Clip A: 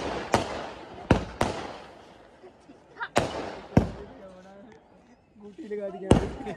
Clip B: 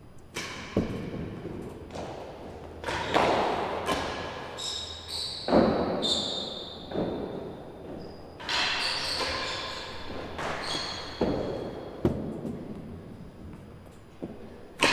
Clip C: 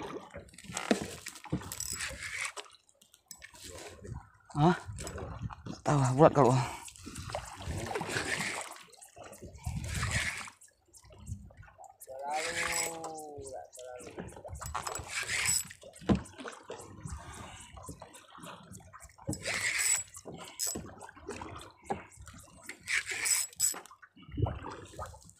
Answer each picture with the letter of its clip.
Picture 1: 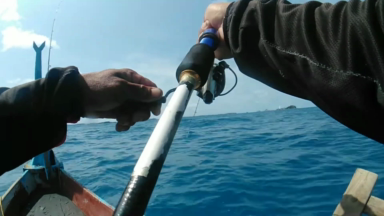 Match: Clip C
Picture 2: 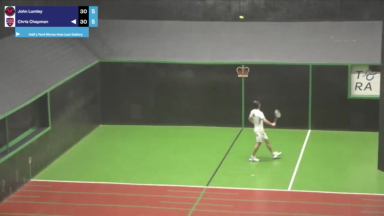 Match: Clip B